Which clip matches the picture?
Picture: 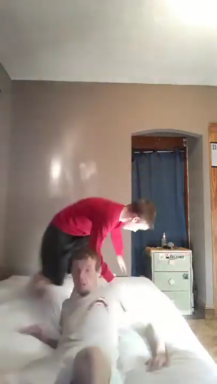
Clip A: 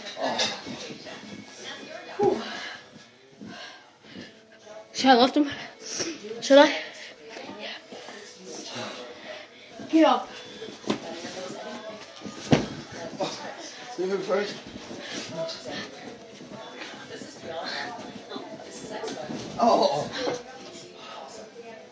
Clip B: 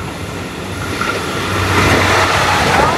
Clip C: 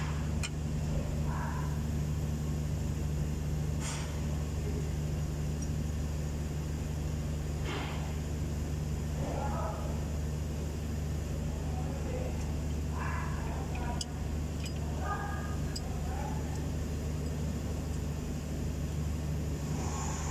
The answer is A